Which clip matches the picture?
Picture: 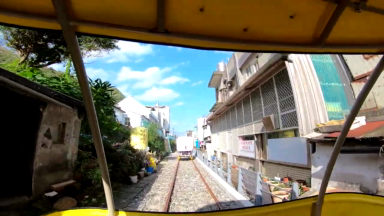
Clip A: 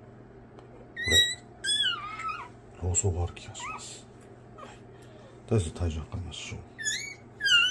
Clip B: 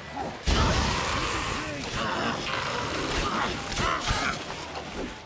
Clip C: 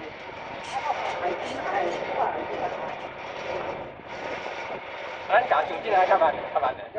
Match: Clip C